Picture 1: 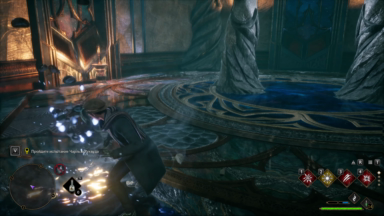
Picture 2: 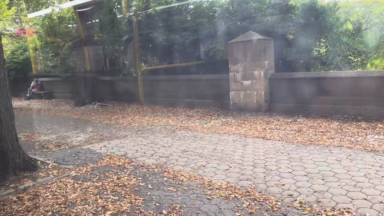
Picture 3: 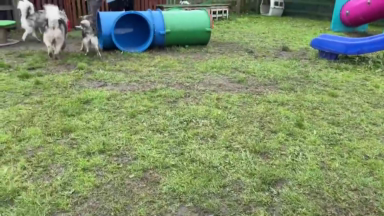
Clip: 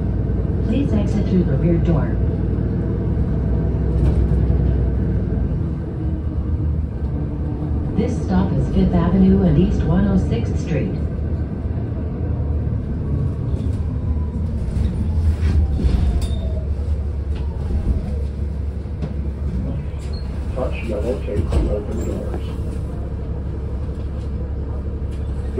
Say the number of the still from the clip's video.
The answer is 2